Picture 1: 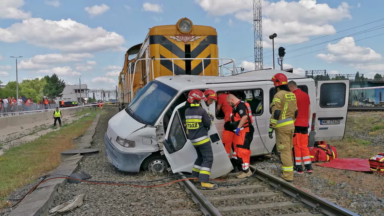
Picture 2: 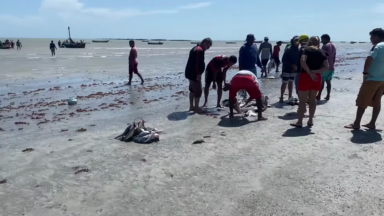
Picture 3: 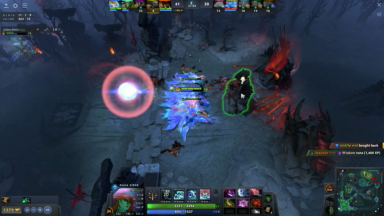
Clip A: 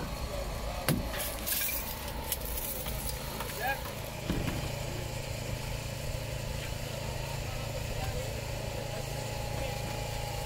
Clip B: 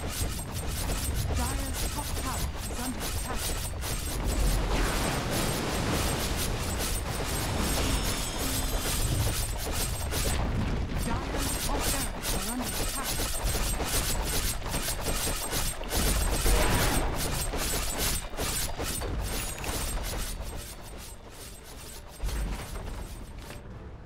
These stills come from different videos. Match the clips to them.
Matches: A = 1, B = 3